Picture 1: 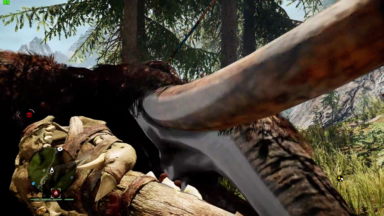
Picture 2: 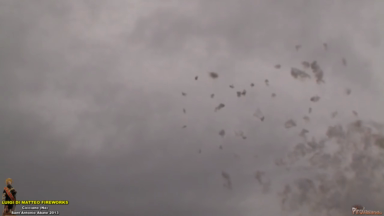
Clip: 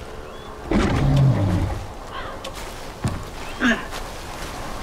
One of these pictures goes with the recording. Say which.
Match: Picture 1